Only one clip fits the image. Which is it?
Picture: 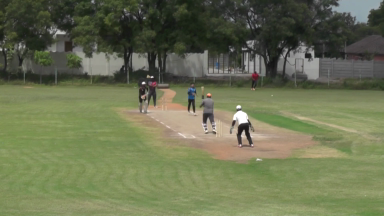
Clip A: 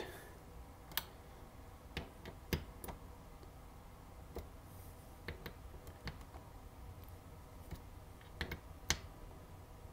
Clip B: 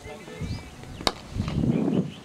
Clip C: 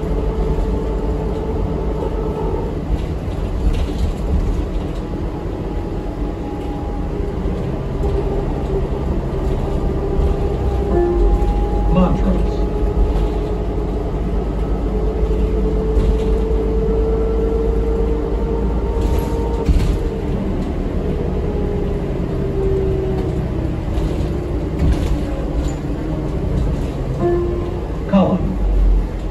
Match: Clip B